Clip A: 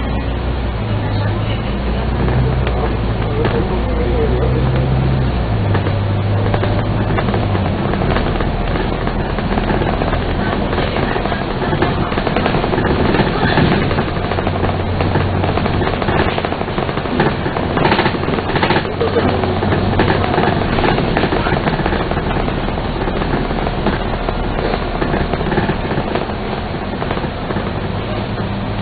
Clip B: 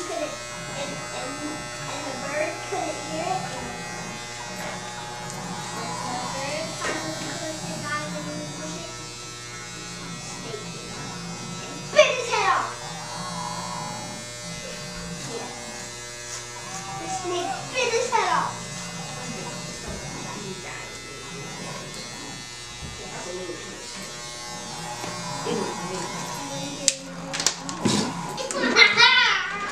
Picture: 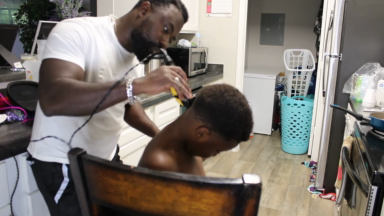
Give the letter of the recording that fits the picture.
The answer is B